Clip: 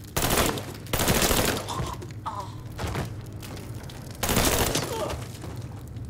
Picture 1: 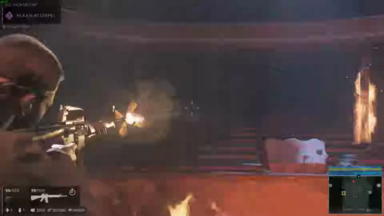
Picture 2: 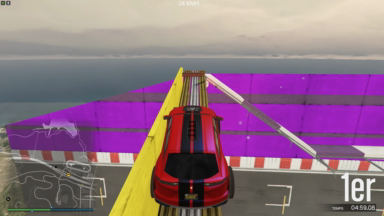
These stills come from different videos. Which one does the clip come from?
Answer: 1